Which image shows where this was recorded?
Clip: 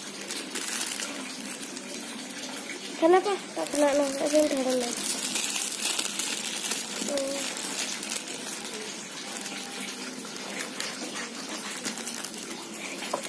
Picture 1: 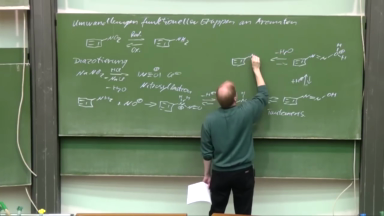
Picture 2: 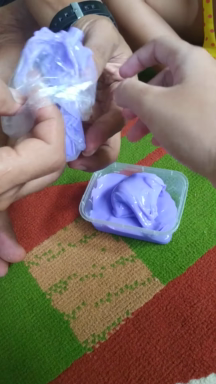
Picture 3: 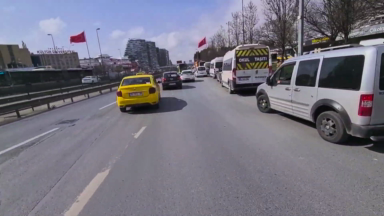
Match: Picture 2